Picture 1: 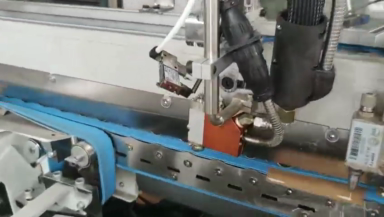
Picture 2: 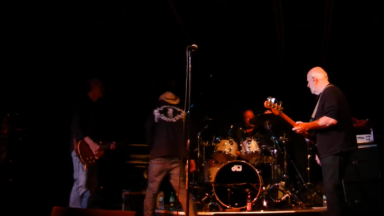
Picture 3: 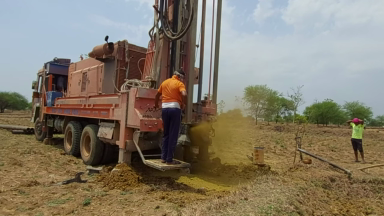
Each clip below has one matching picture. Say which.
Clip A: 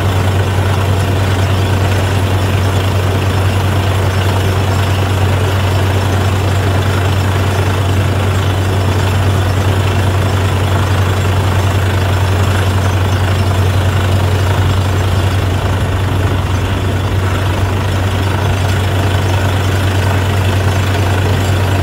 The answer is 3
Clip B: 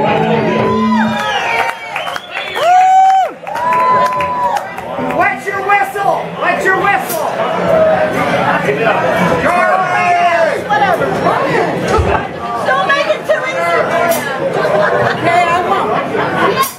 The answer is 2